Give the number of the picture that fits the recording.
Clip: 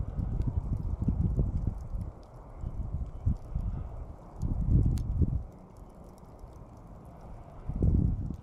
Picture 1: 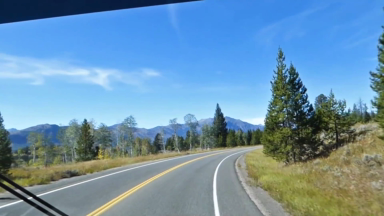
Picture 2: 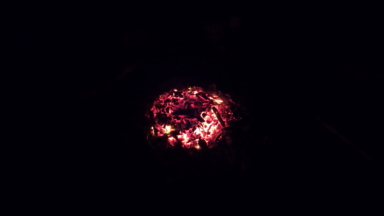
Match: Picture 2